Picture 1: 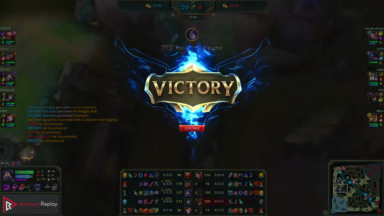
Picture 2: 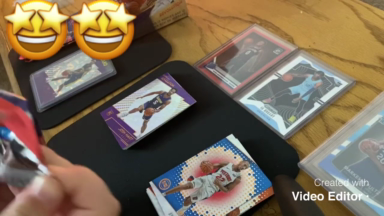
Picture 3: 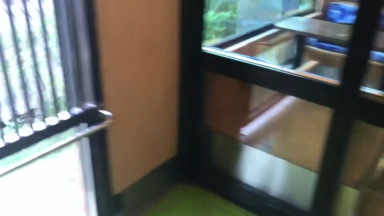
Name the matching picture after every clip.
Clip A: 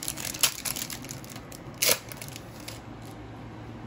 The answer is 2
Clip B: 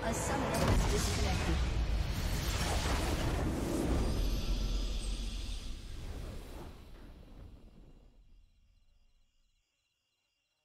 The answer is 1